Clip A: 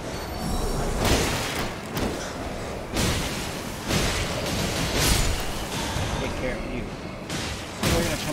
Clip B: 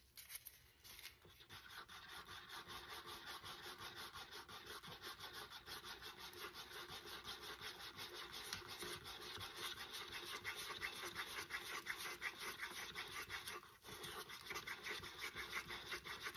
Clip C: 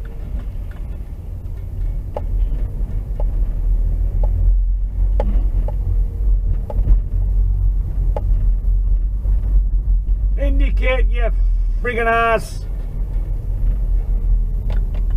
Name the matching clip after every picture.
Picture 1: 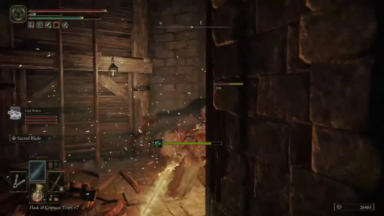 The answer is A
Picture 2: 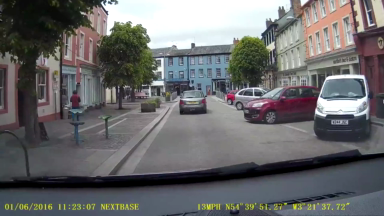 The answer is C